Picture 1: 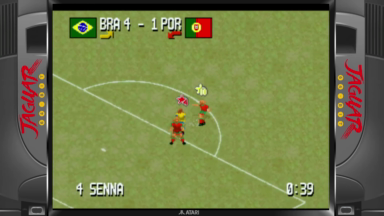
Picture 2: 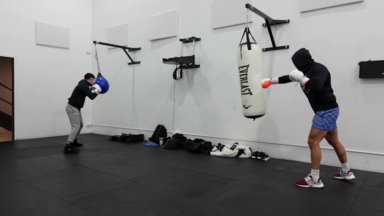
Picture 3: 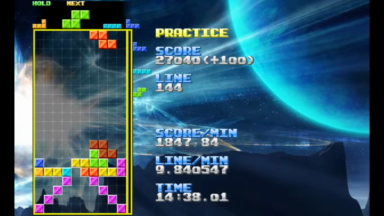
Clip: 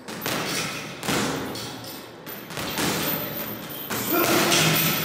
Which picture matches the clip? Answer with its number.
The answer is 2